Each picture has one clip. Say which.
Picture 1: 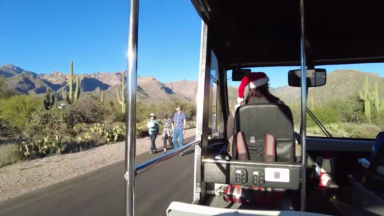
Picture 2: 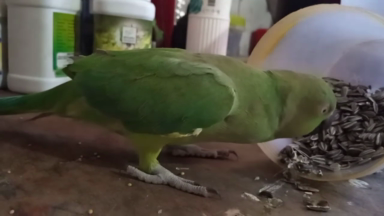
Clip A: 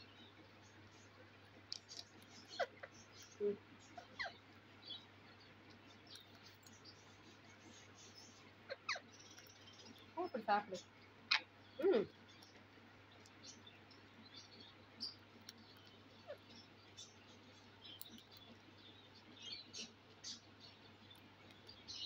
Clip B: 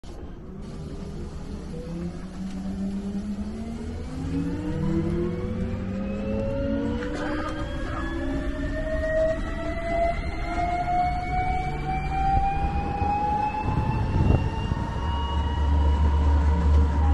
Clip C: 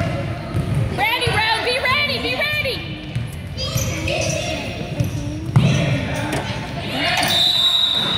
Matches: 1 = B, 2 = A